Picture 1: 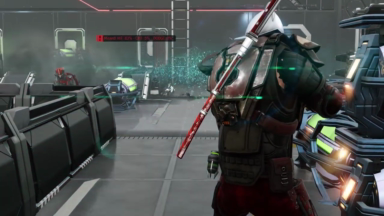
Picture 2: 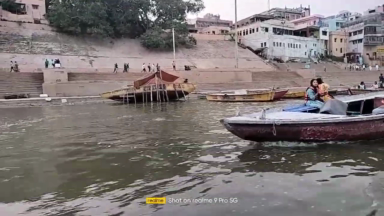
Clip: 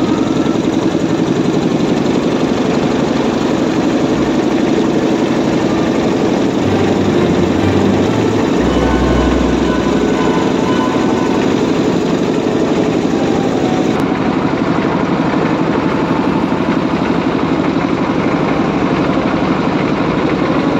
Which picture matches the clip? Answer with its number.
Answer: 2